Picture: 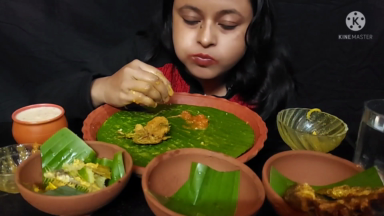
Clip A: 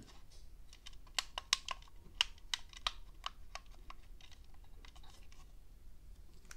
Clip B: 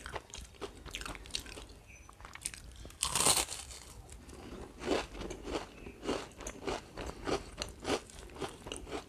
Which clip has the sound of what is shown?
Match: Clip B